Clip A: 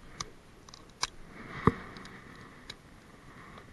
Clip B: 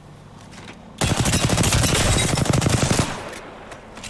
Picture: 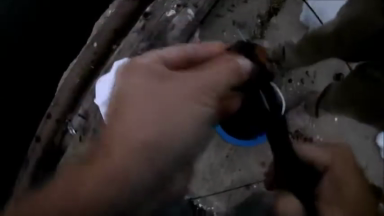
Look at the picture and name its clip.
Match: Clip A